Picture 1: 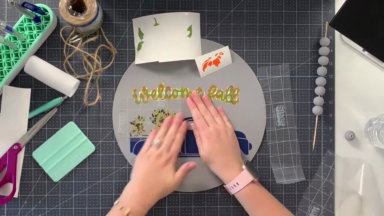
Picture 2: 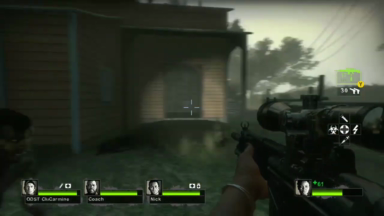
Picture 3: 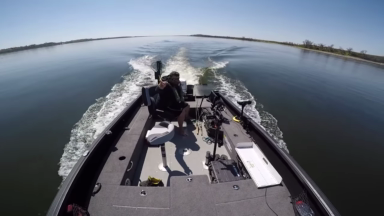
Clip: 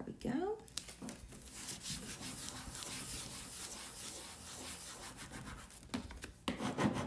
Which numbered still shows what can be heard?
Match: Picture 1